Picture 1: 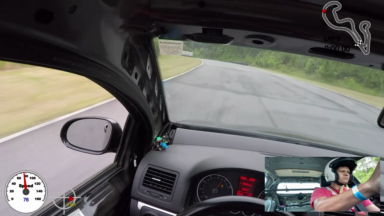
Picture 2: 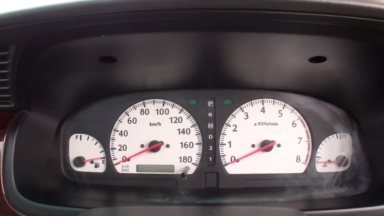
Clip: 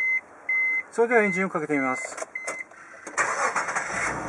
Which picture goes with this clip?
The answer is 2